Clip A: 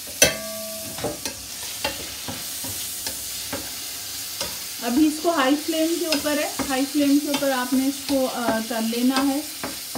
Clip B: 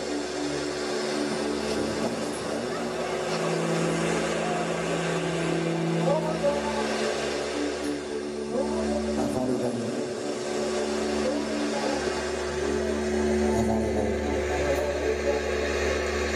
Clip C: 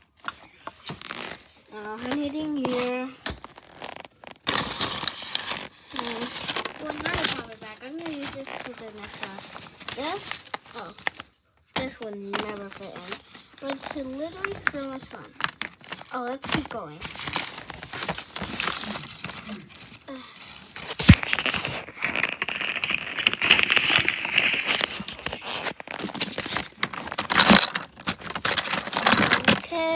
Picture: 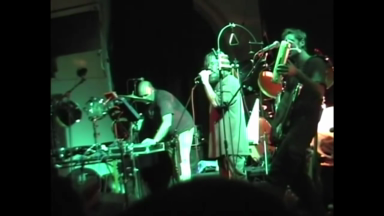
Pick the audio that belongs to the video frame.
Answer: B